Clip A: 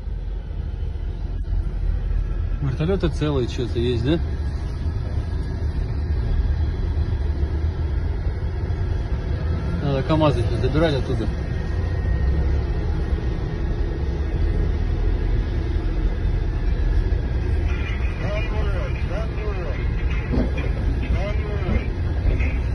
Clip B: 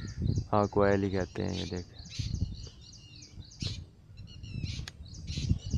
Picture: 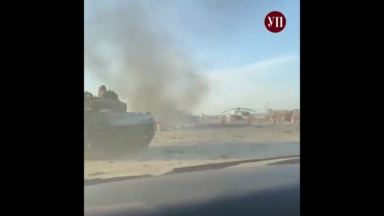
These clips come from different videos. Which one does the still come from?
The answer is A